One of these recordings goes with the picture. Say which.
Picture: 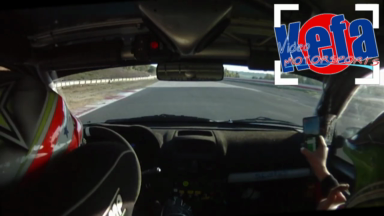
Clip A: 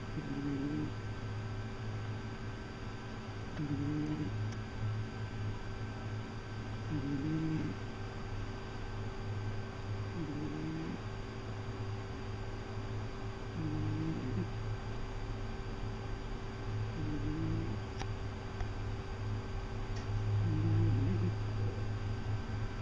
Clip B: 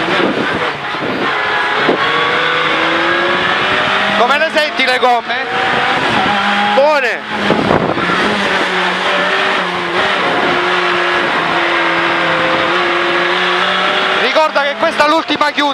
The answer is B